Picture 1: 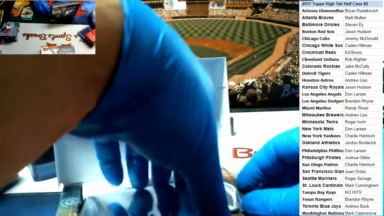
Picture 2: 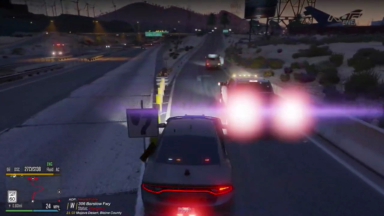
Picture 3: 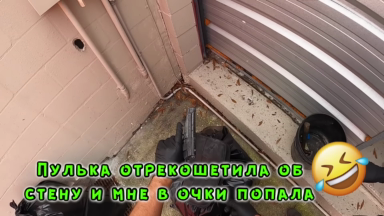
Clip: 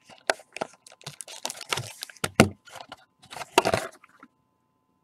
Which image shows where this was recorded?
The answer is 1